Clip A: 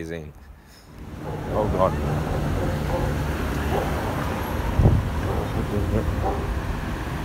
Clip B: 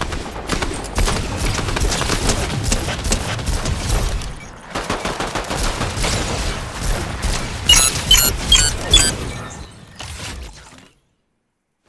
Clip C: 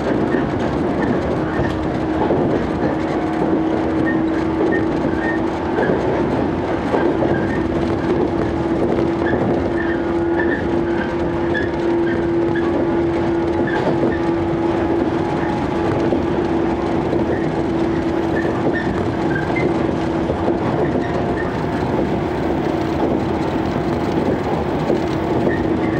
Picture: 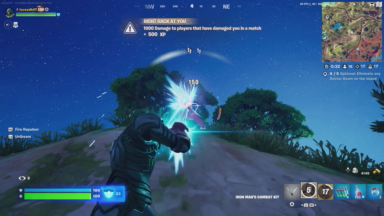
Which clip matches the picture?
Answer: B